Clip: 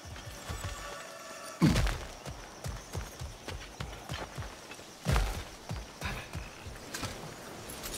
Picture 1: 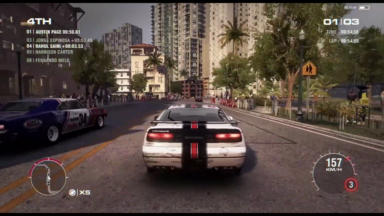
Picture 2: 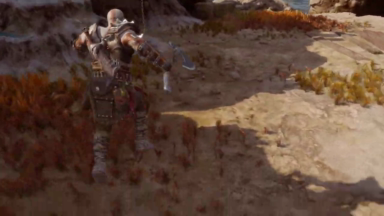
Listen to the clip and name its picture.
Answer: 2